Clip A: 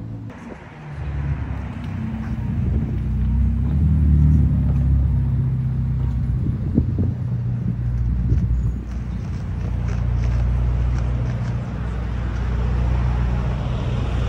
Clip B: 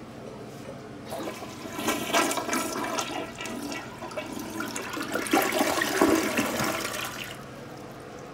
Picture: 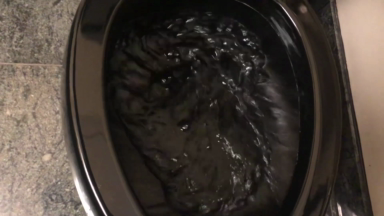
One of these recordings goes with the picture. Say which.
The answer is B